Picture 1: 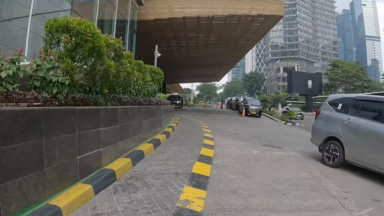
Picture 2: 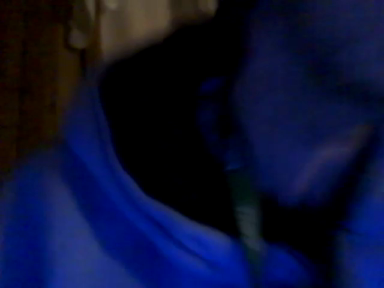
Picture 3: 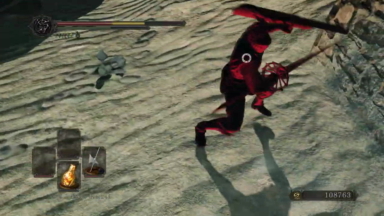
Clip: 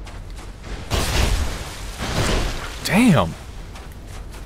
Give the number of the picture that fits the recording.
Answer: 3